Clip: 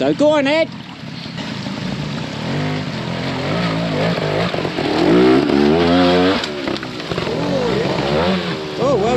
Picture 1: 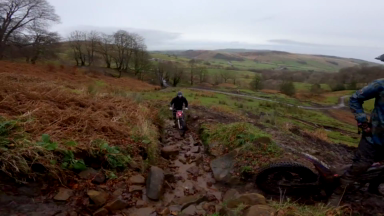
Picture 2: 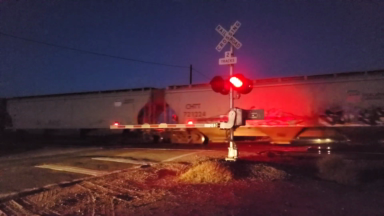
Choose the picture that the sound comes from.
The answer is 1